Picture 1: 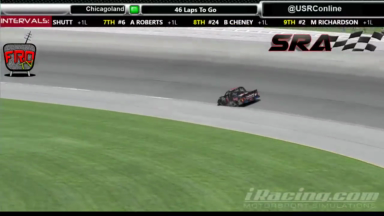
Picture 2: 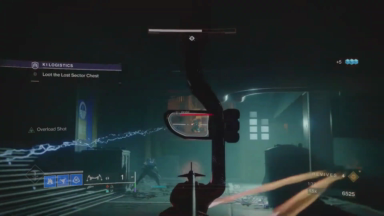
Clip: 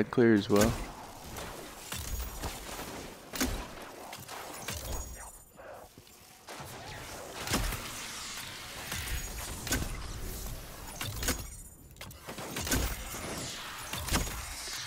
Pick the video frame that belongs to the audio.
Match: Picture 2